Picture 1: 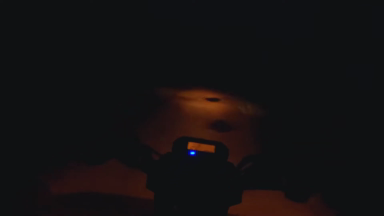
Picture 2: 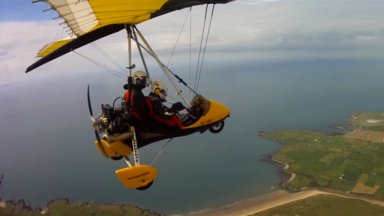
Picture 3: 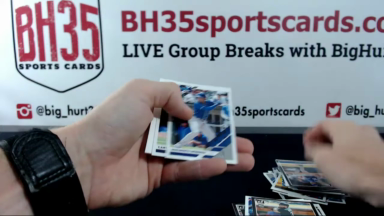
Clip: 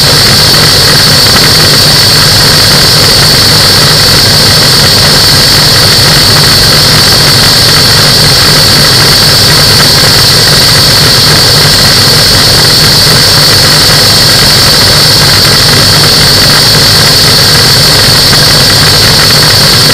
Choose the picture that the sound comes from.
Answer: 2